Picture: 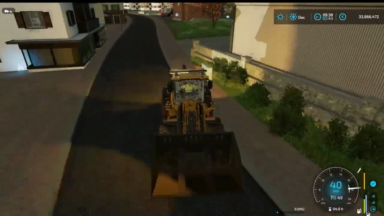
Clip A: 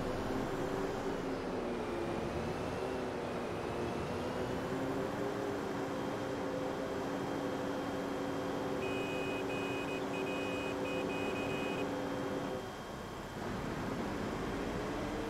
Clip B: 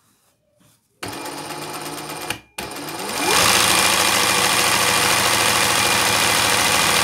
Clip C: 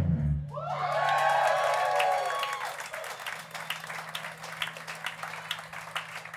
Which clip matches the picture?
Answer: A